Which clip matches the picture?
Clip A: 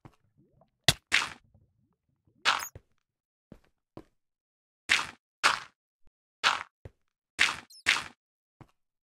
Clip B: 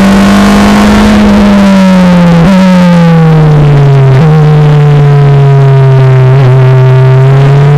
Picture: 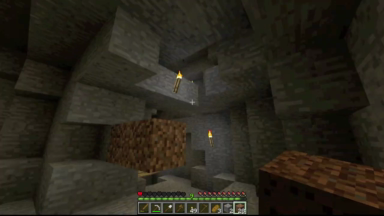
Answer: A